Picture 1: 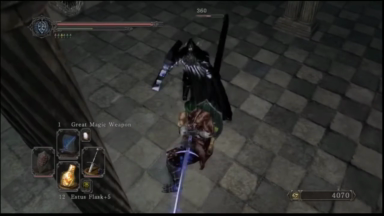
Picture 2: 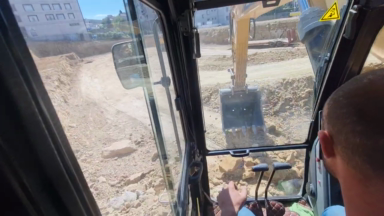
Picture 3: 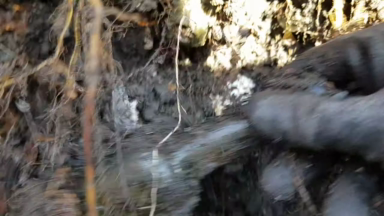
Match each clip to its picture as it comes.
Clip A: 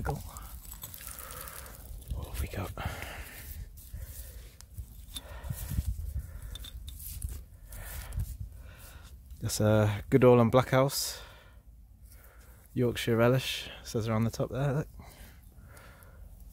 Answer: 3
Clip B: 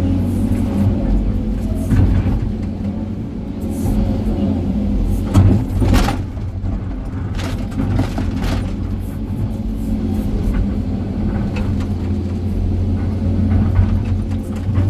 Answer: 2